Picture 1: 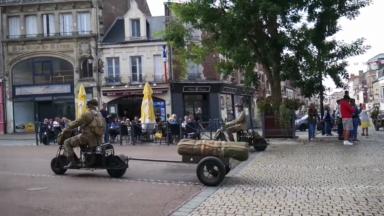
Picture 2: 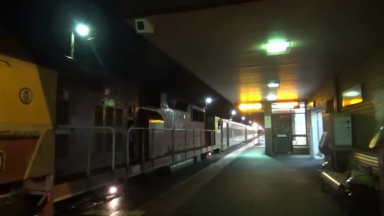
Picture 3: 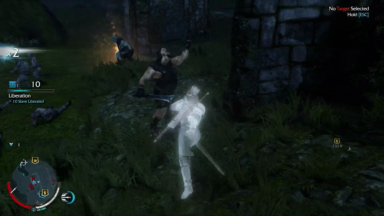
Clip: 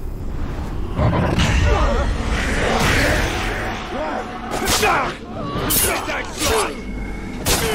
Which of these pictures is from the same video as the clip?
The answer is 3